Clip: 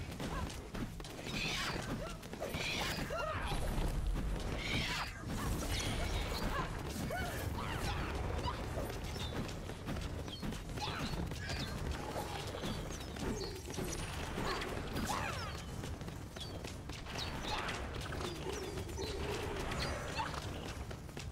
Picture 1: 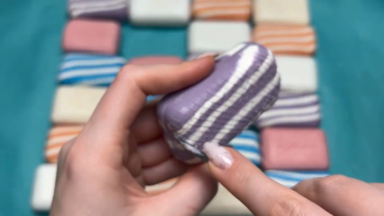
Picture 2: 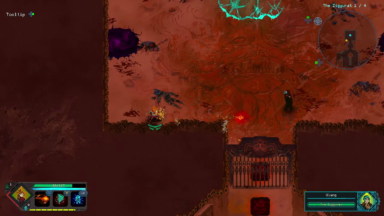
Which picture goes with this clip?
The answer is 2